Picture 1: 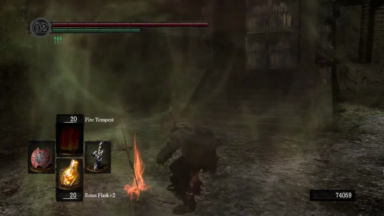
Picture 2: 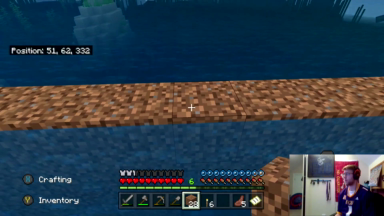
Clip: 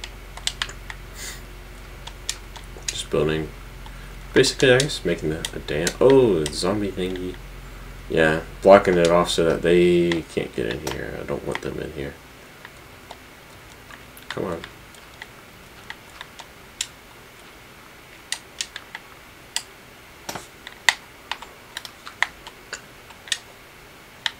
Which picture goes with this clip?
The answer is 2